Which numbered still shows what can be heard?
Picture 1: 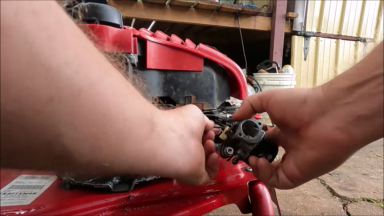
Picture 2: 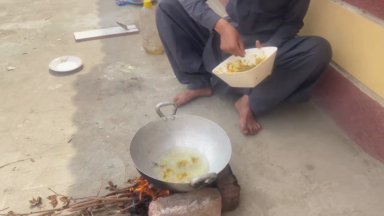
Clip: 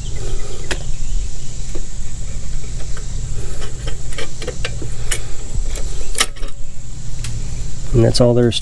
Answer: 1